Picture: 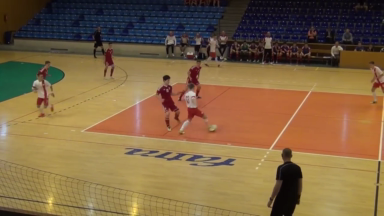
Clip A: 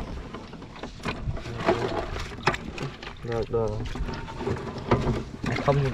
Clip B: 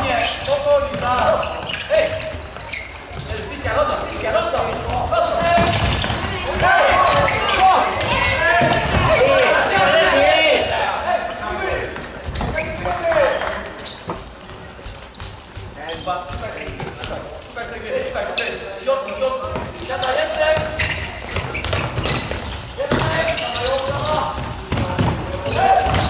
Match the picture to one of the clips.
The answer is B